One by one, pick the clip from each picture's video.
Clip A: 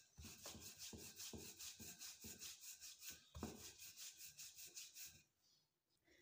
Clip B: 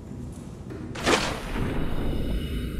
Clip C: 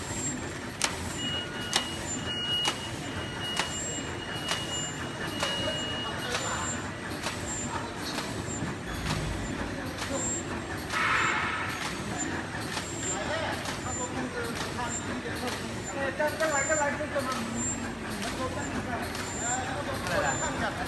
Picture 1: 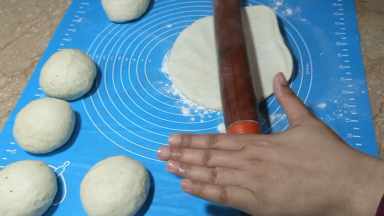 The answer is A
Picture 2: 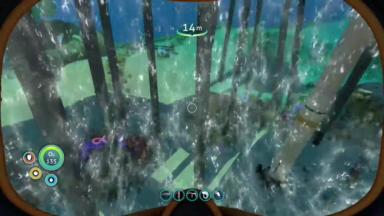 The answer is B